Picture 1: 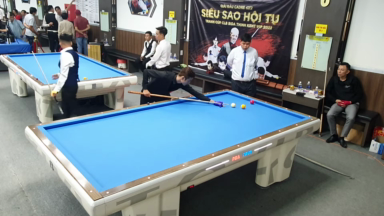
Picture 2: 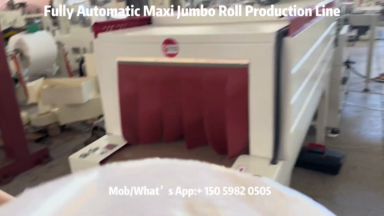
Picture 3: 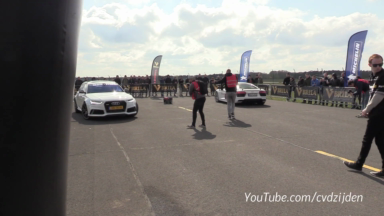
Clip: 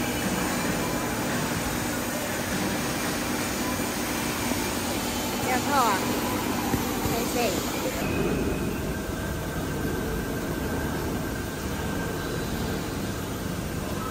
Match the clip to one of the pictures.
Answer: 2